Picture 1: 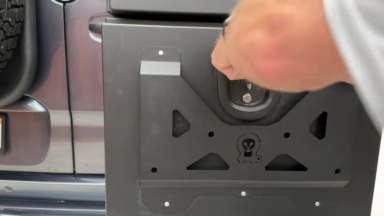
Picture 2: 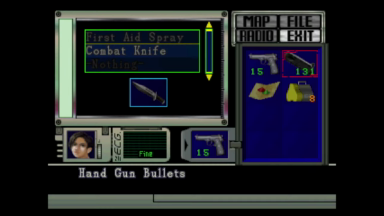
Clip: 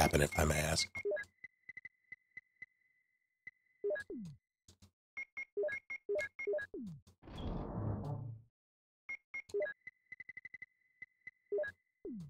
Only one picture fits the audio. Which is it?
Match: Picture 2